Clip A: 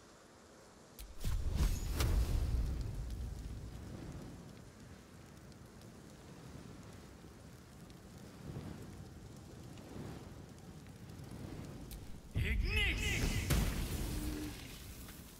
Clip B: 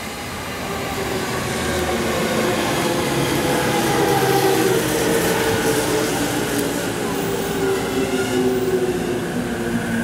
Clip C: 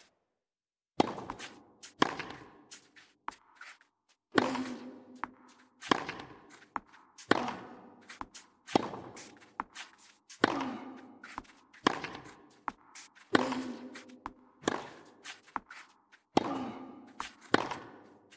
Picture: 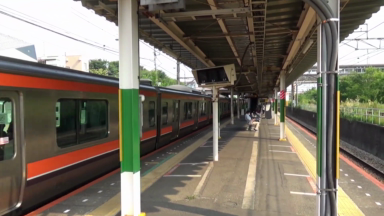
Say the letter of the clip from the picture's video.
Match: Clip B